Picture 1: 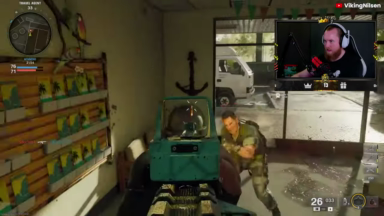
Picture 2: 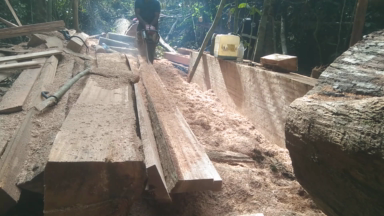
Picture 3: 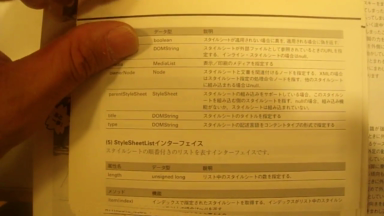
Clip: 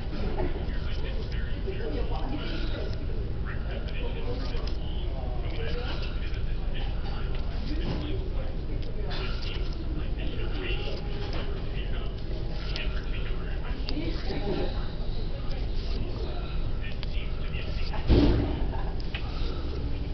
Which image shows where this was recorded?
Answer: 3